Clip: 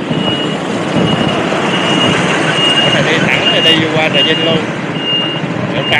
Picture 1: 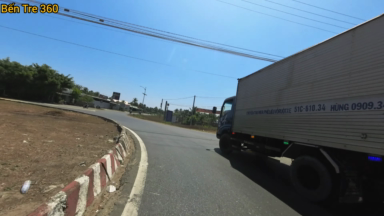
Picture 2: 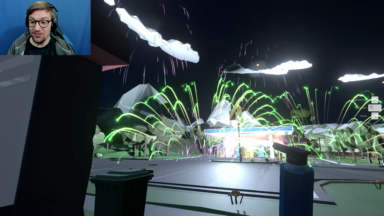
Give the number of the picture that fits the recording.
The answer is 1